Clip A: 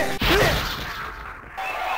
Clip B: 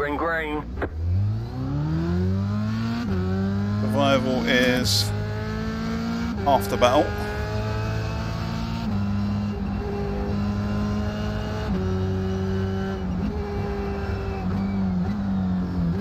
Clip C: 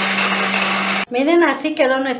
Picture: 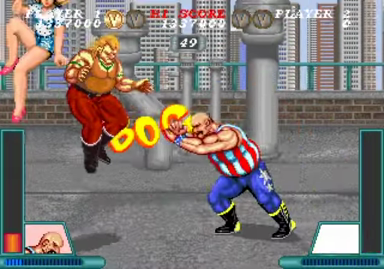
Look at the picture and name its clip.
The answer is A